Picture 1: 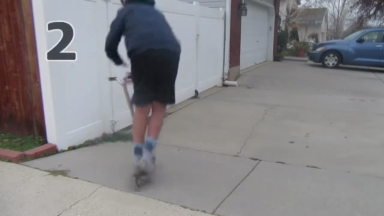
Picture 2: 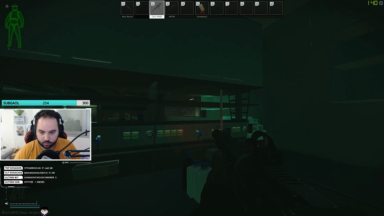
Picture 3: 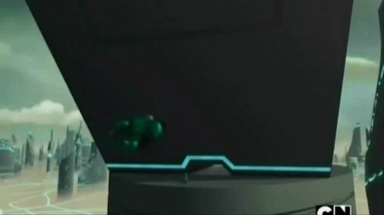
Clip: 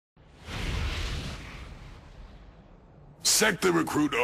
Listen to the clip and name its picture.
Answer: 3